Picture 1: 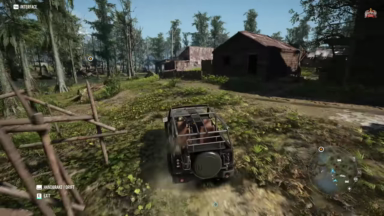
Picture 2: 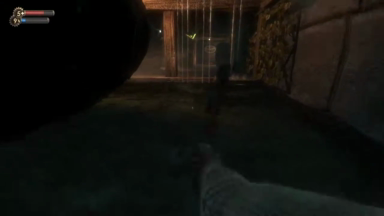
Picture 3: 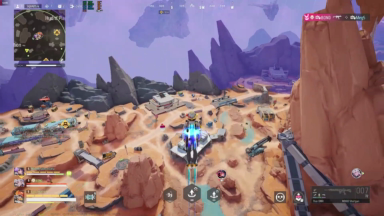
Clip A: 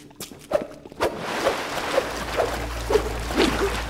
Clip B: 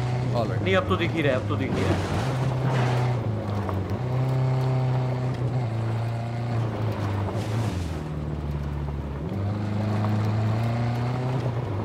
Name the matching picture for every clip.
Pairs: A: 2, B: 1